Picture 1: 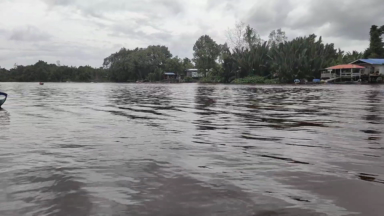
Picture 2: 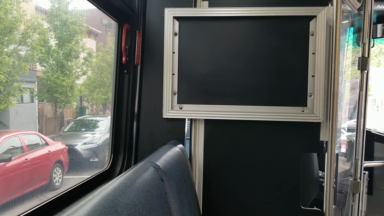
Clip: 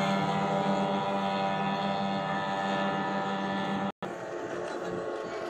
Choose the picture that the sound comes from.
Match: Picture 1